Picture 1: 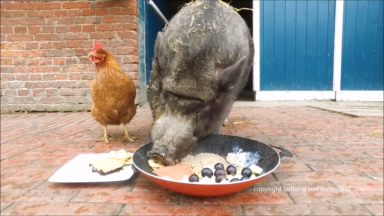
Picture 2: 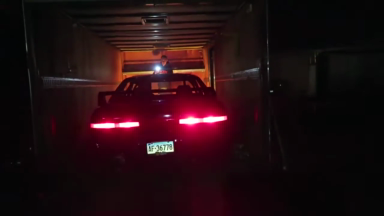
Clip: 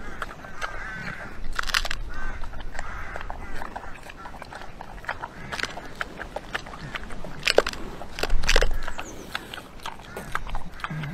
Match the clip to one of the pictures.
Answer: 1